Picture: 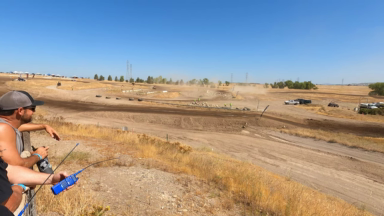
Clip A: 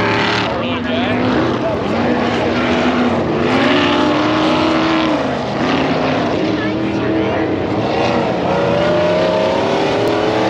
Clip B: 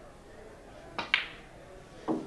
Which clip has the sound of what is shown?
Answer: A